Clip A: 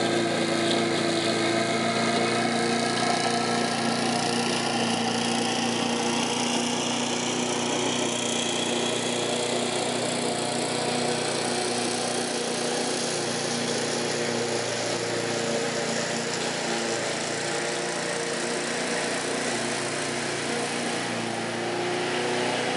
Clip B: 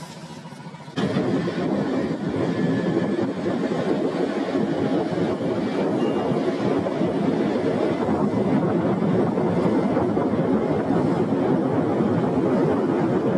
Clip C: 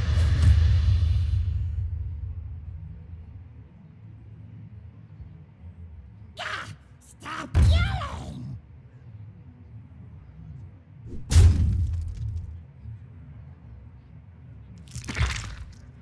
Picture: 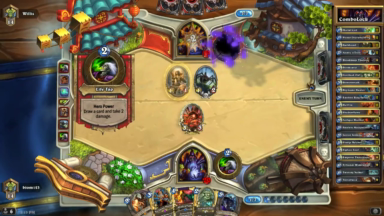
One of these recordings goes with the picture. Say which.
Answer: C